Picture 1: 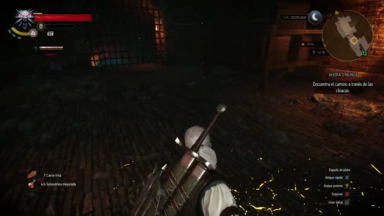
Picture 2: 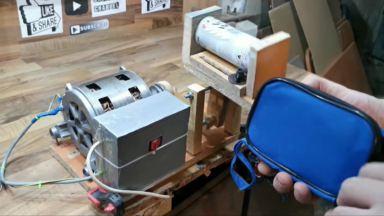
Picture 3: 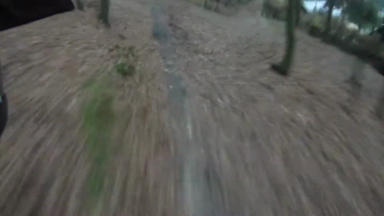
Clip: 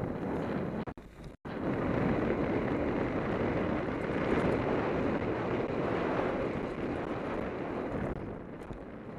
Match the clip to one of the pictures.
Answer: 3